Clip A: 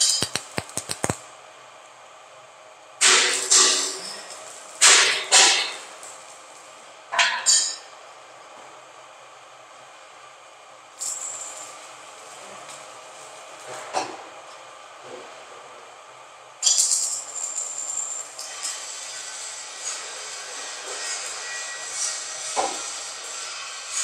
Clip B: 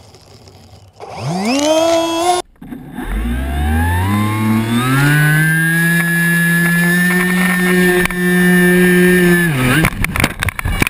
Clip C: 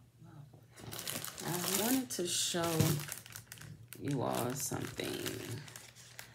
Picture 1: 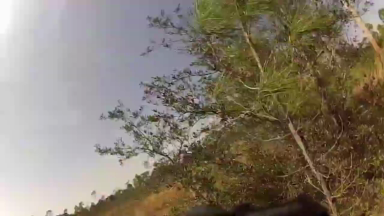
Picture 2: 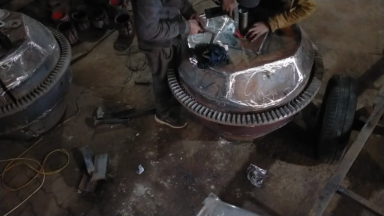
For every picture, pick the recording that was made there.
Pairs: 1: B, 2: A